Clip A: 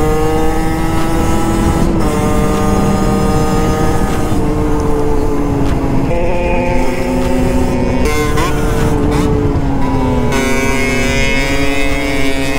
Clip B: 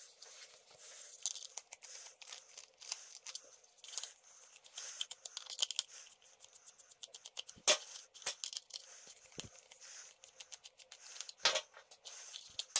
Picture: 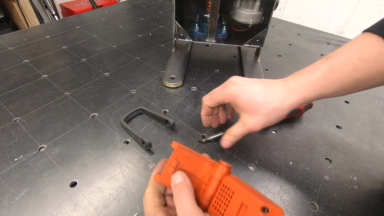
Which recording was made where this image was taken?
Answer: B